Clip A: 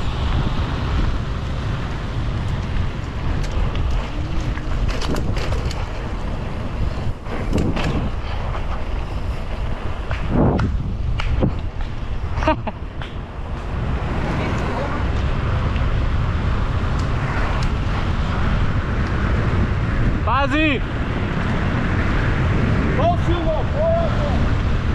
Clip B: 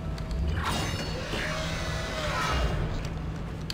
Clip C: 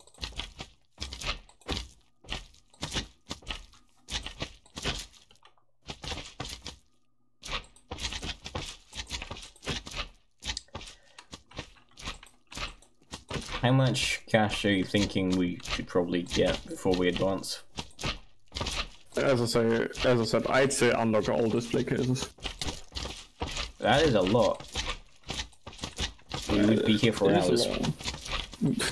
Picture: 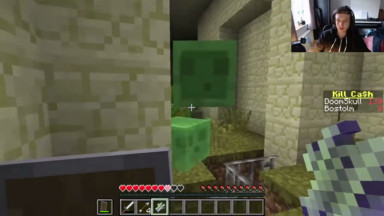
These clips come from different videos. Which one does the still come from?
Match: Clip C